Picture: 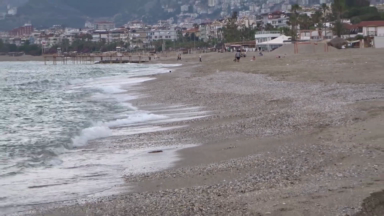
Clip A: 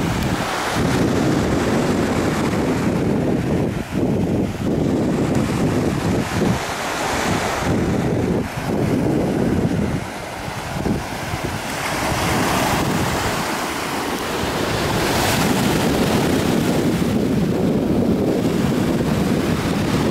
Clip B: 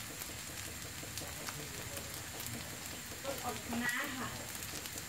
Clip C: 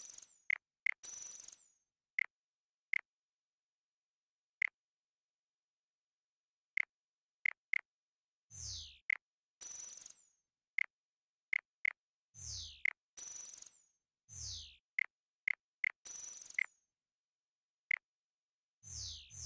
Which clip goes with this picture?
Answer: A